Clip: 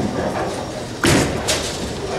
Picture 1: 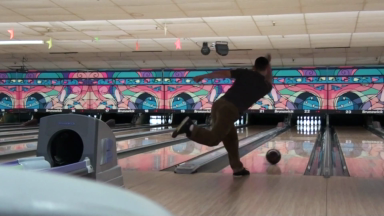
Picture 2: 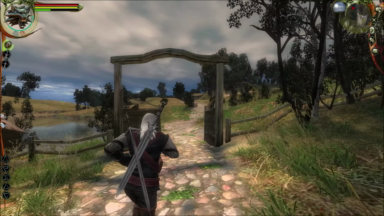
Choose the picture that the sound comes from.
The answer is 1